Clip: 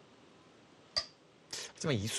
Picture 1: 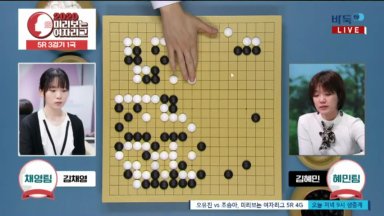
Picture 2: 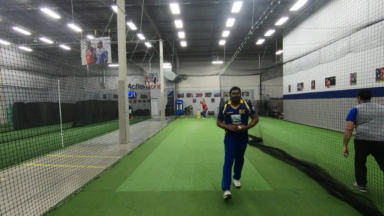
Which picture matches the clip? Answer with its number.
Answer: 1